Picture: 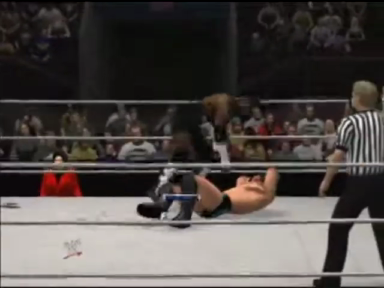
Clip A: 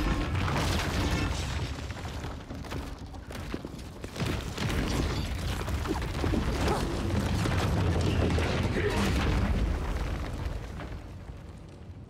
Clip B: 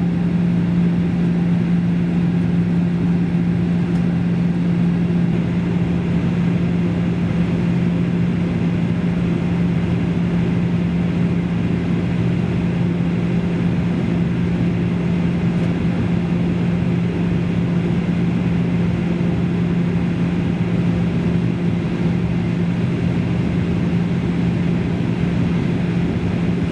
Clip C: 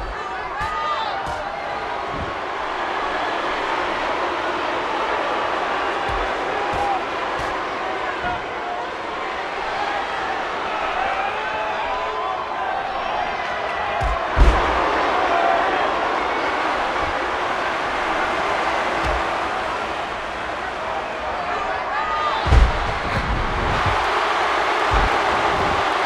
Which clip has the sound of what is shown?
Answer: C